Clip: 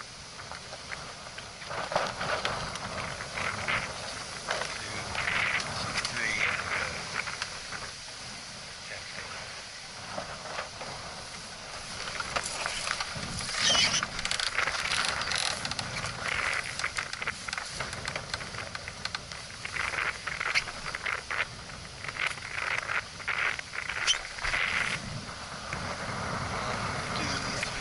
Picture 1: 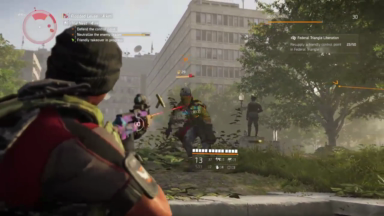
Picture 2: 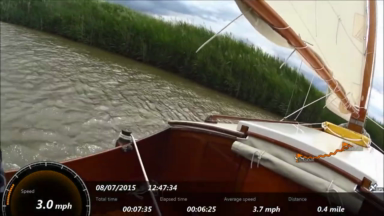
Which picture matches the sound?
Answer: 2